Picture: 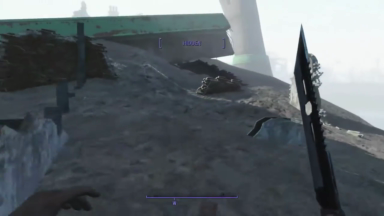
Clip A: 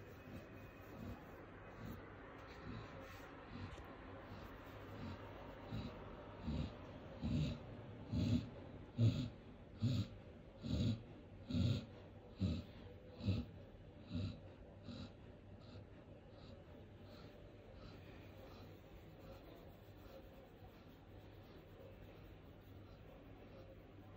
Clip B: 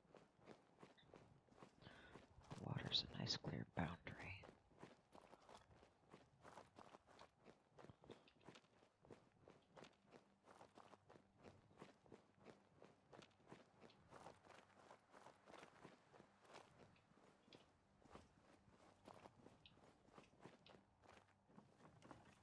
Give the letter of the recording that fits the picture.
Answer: B